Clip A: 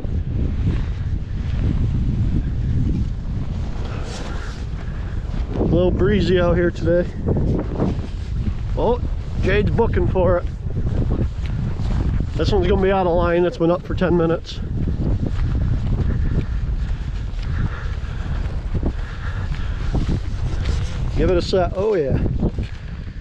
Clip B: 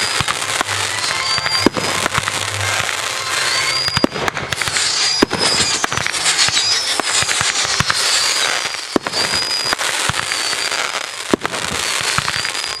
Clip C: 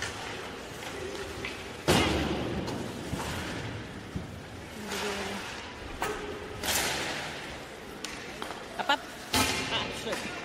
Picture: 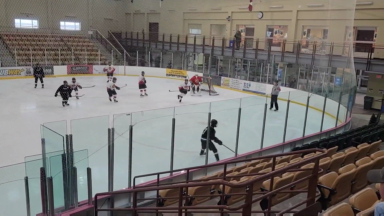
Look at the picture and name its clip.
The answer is C